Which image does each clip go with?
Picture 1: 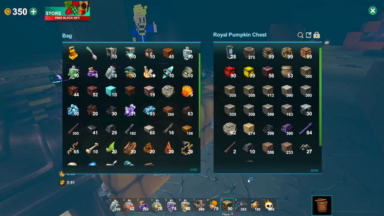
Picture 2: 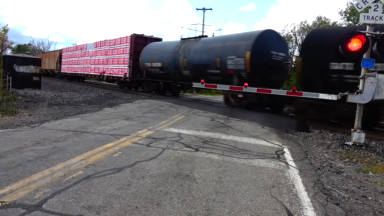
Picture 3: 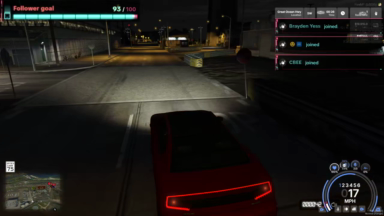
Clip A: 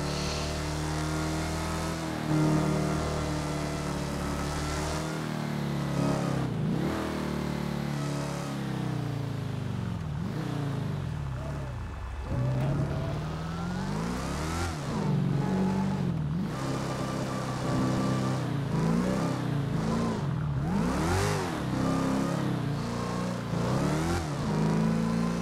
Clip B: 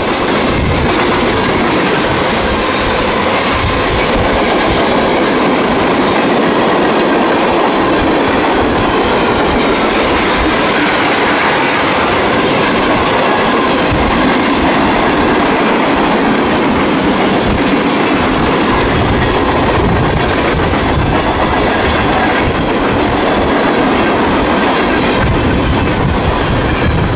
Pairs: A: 3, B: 2